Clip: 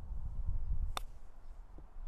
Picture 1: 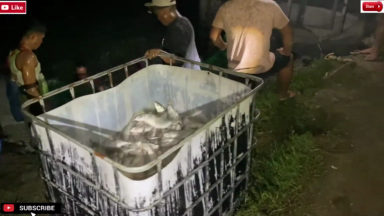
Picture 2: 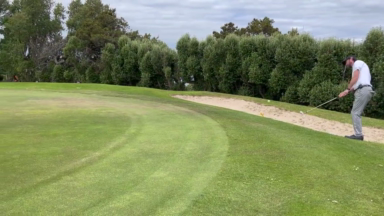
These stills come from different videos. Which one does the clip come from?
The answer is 2